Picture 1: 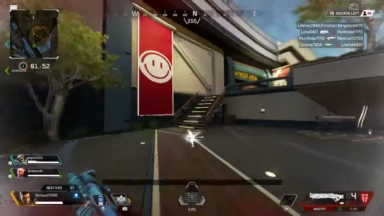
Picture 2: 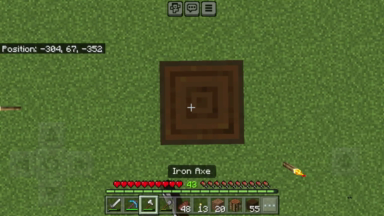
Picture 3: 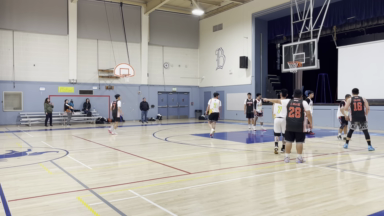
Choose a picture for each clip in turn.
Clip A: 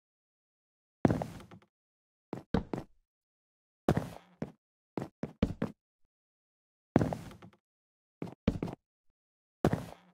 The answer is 2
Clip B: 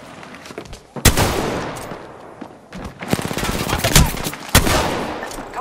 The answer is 1